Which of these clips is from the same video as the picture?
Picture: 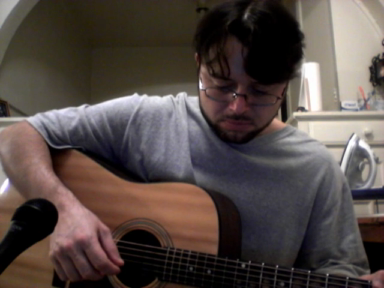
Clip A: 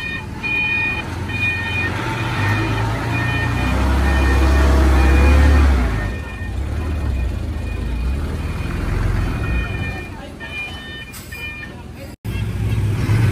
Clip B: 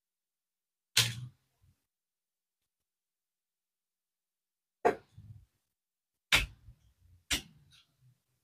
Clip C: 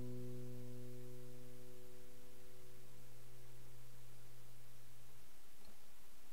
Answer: C